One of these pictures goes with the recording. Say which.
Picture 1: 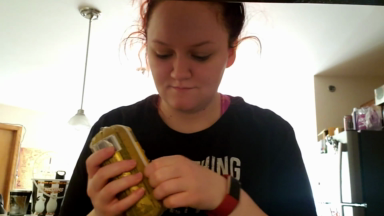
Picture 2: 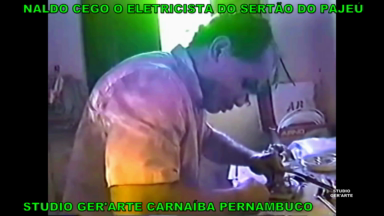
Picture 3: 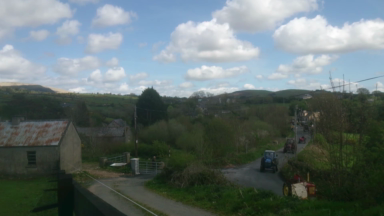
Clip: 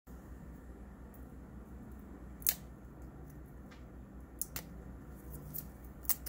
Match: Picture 1